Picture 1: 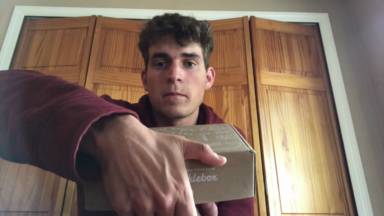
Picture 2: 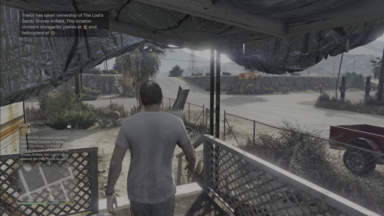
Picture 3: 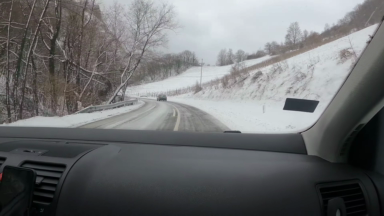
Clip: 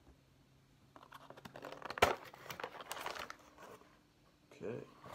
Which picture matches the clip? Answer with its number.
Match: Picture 1